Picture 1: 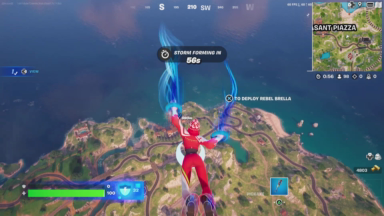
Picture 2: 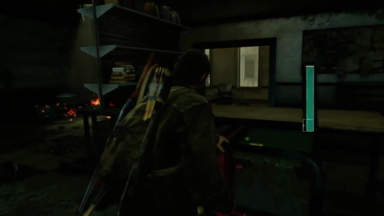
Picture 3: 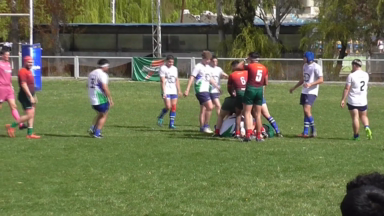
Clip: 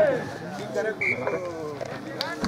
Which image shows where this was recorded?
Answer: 3